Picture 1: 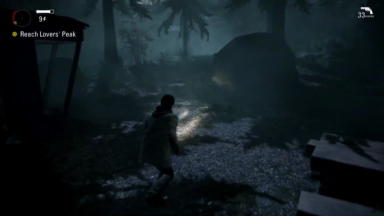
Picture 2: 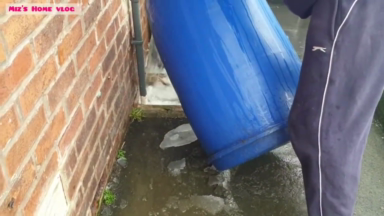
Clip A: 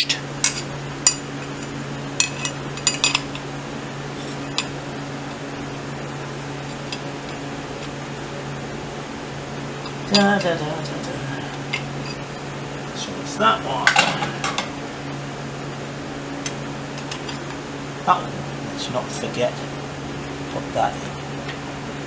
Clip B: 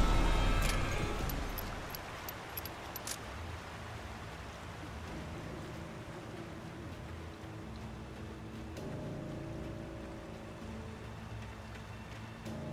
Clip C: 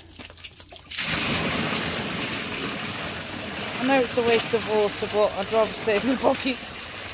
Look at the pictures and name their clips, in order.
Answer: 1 B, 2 C